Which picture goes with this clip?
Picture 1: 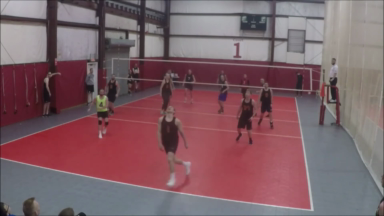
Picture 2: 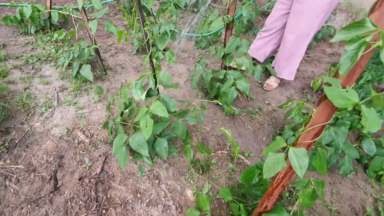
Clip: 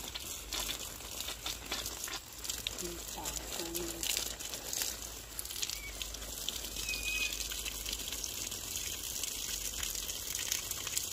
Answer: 2